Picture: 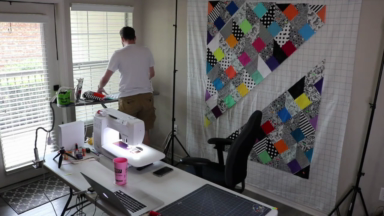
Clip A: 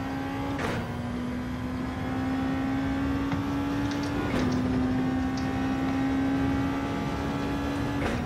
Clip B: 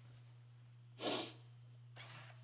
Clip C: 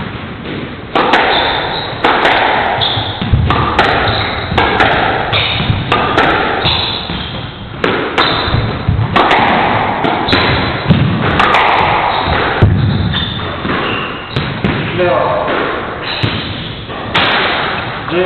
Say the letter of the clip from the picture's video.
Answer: B